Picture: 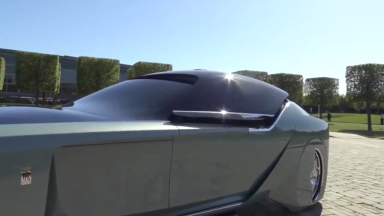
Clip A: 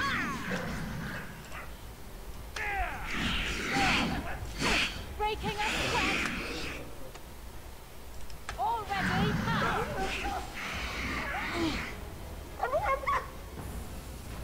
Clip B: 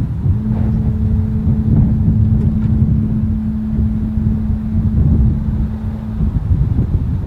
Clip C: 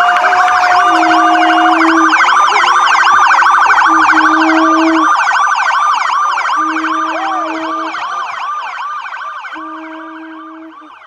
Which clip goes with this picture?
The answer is B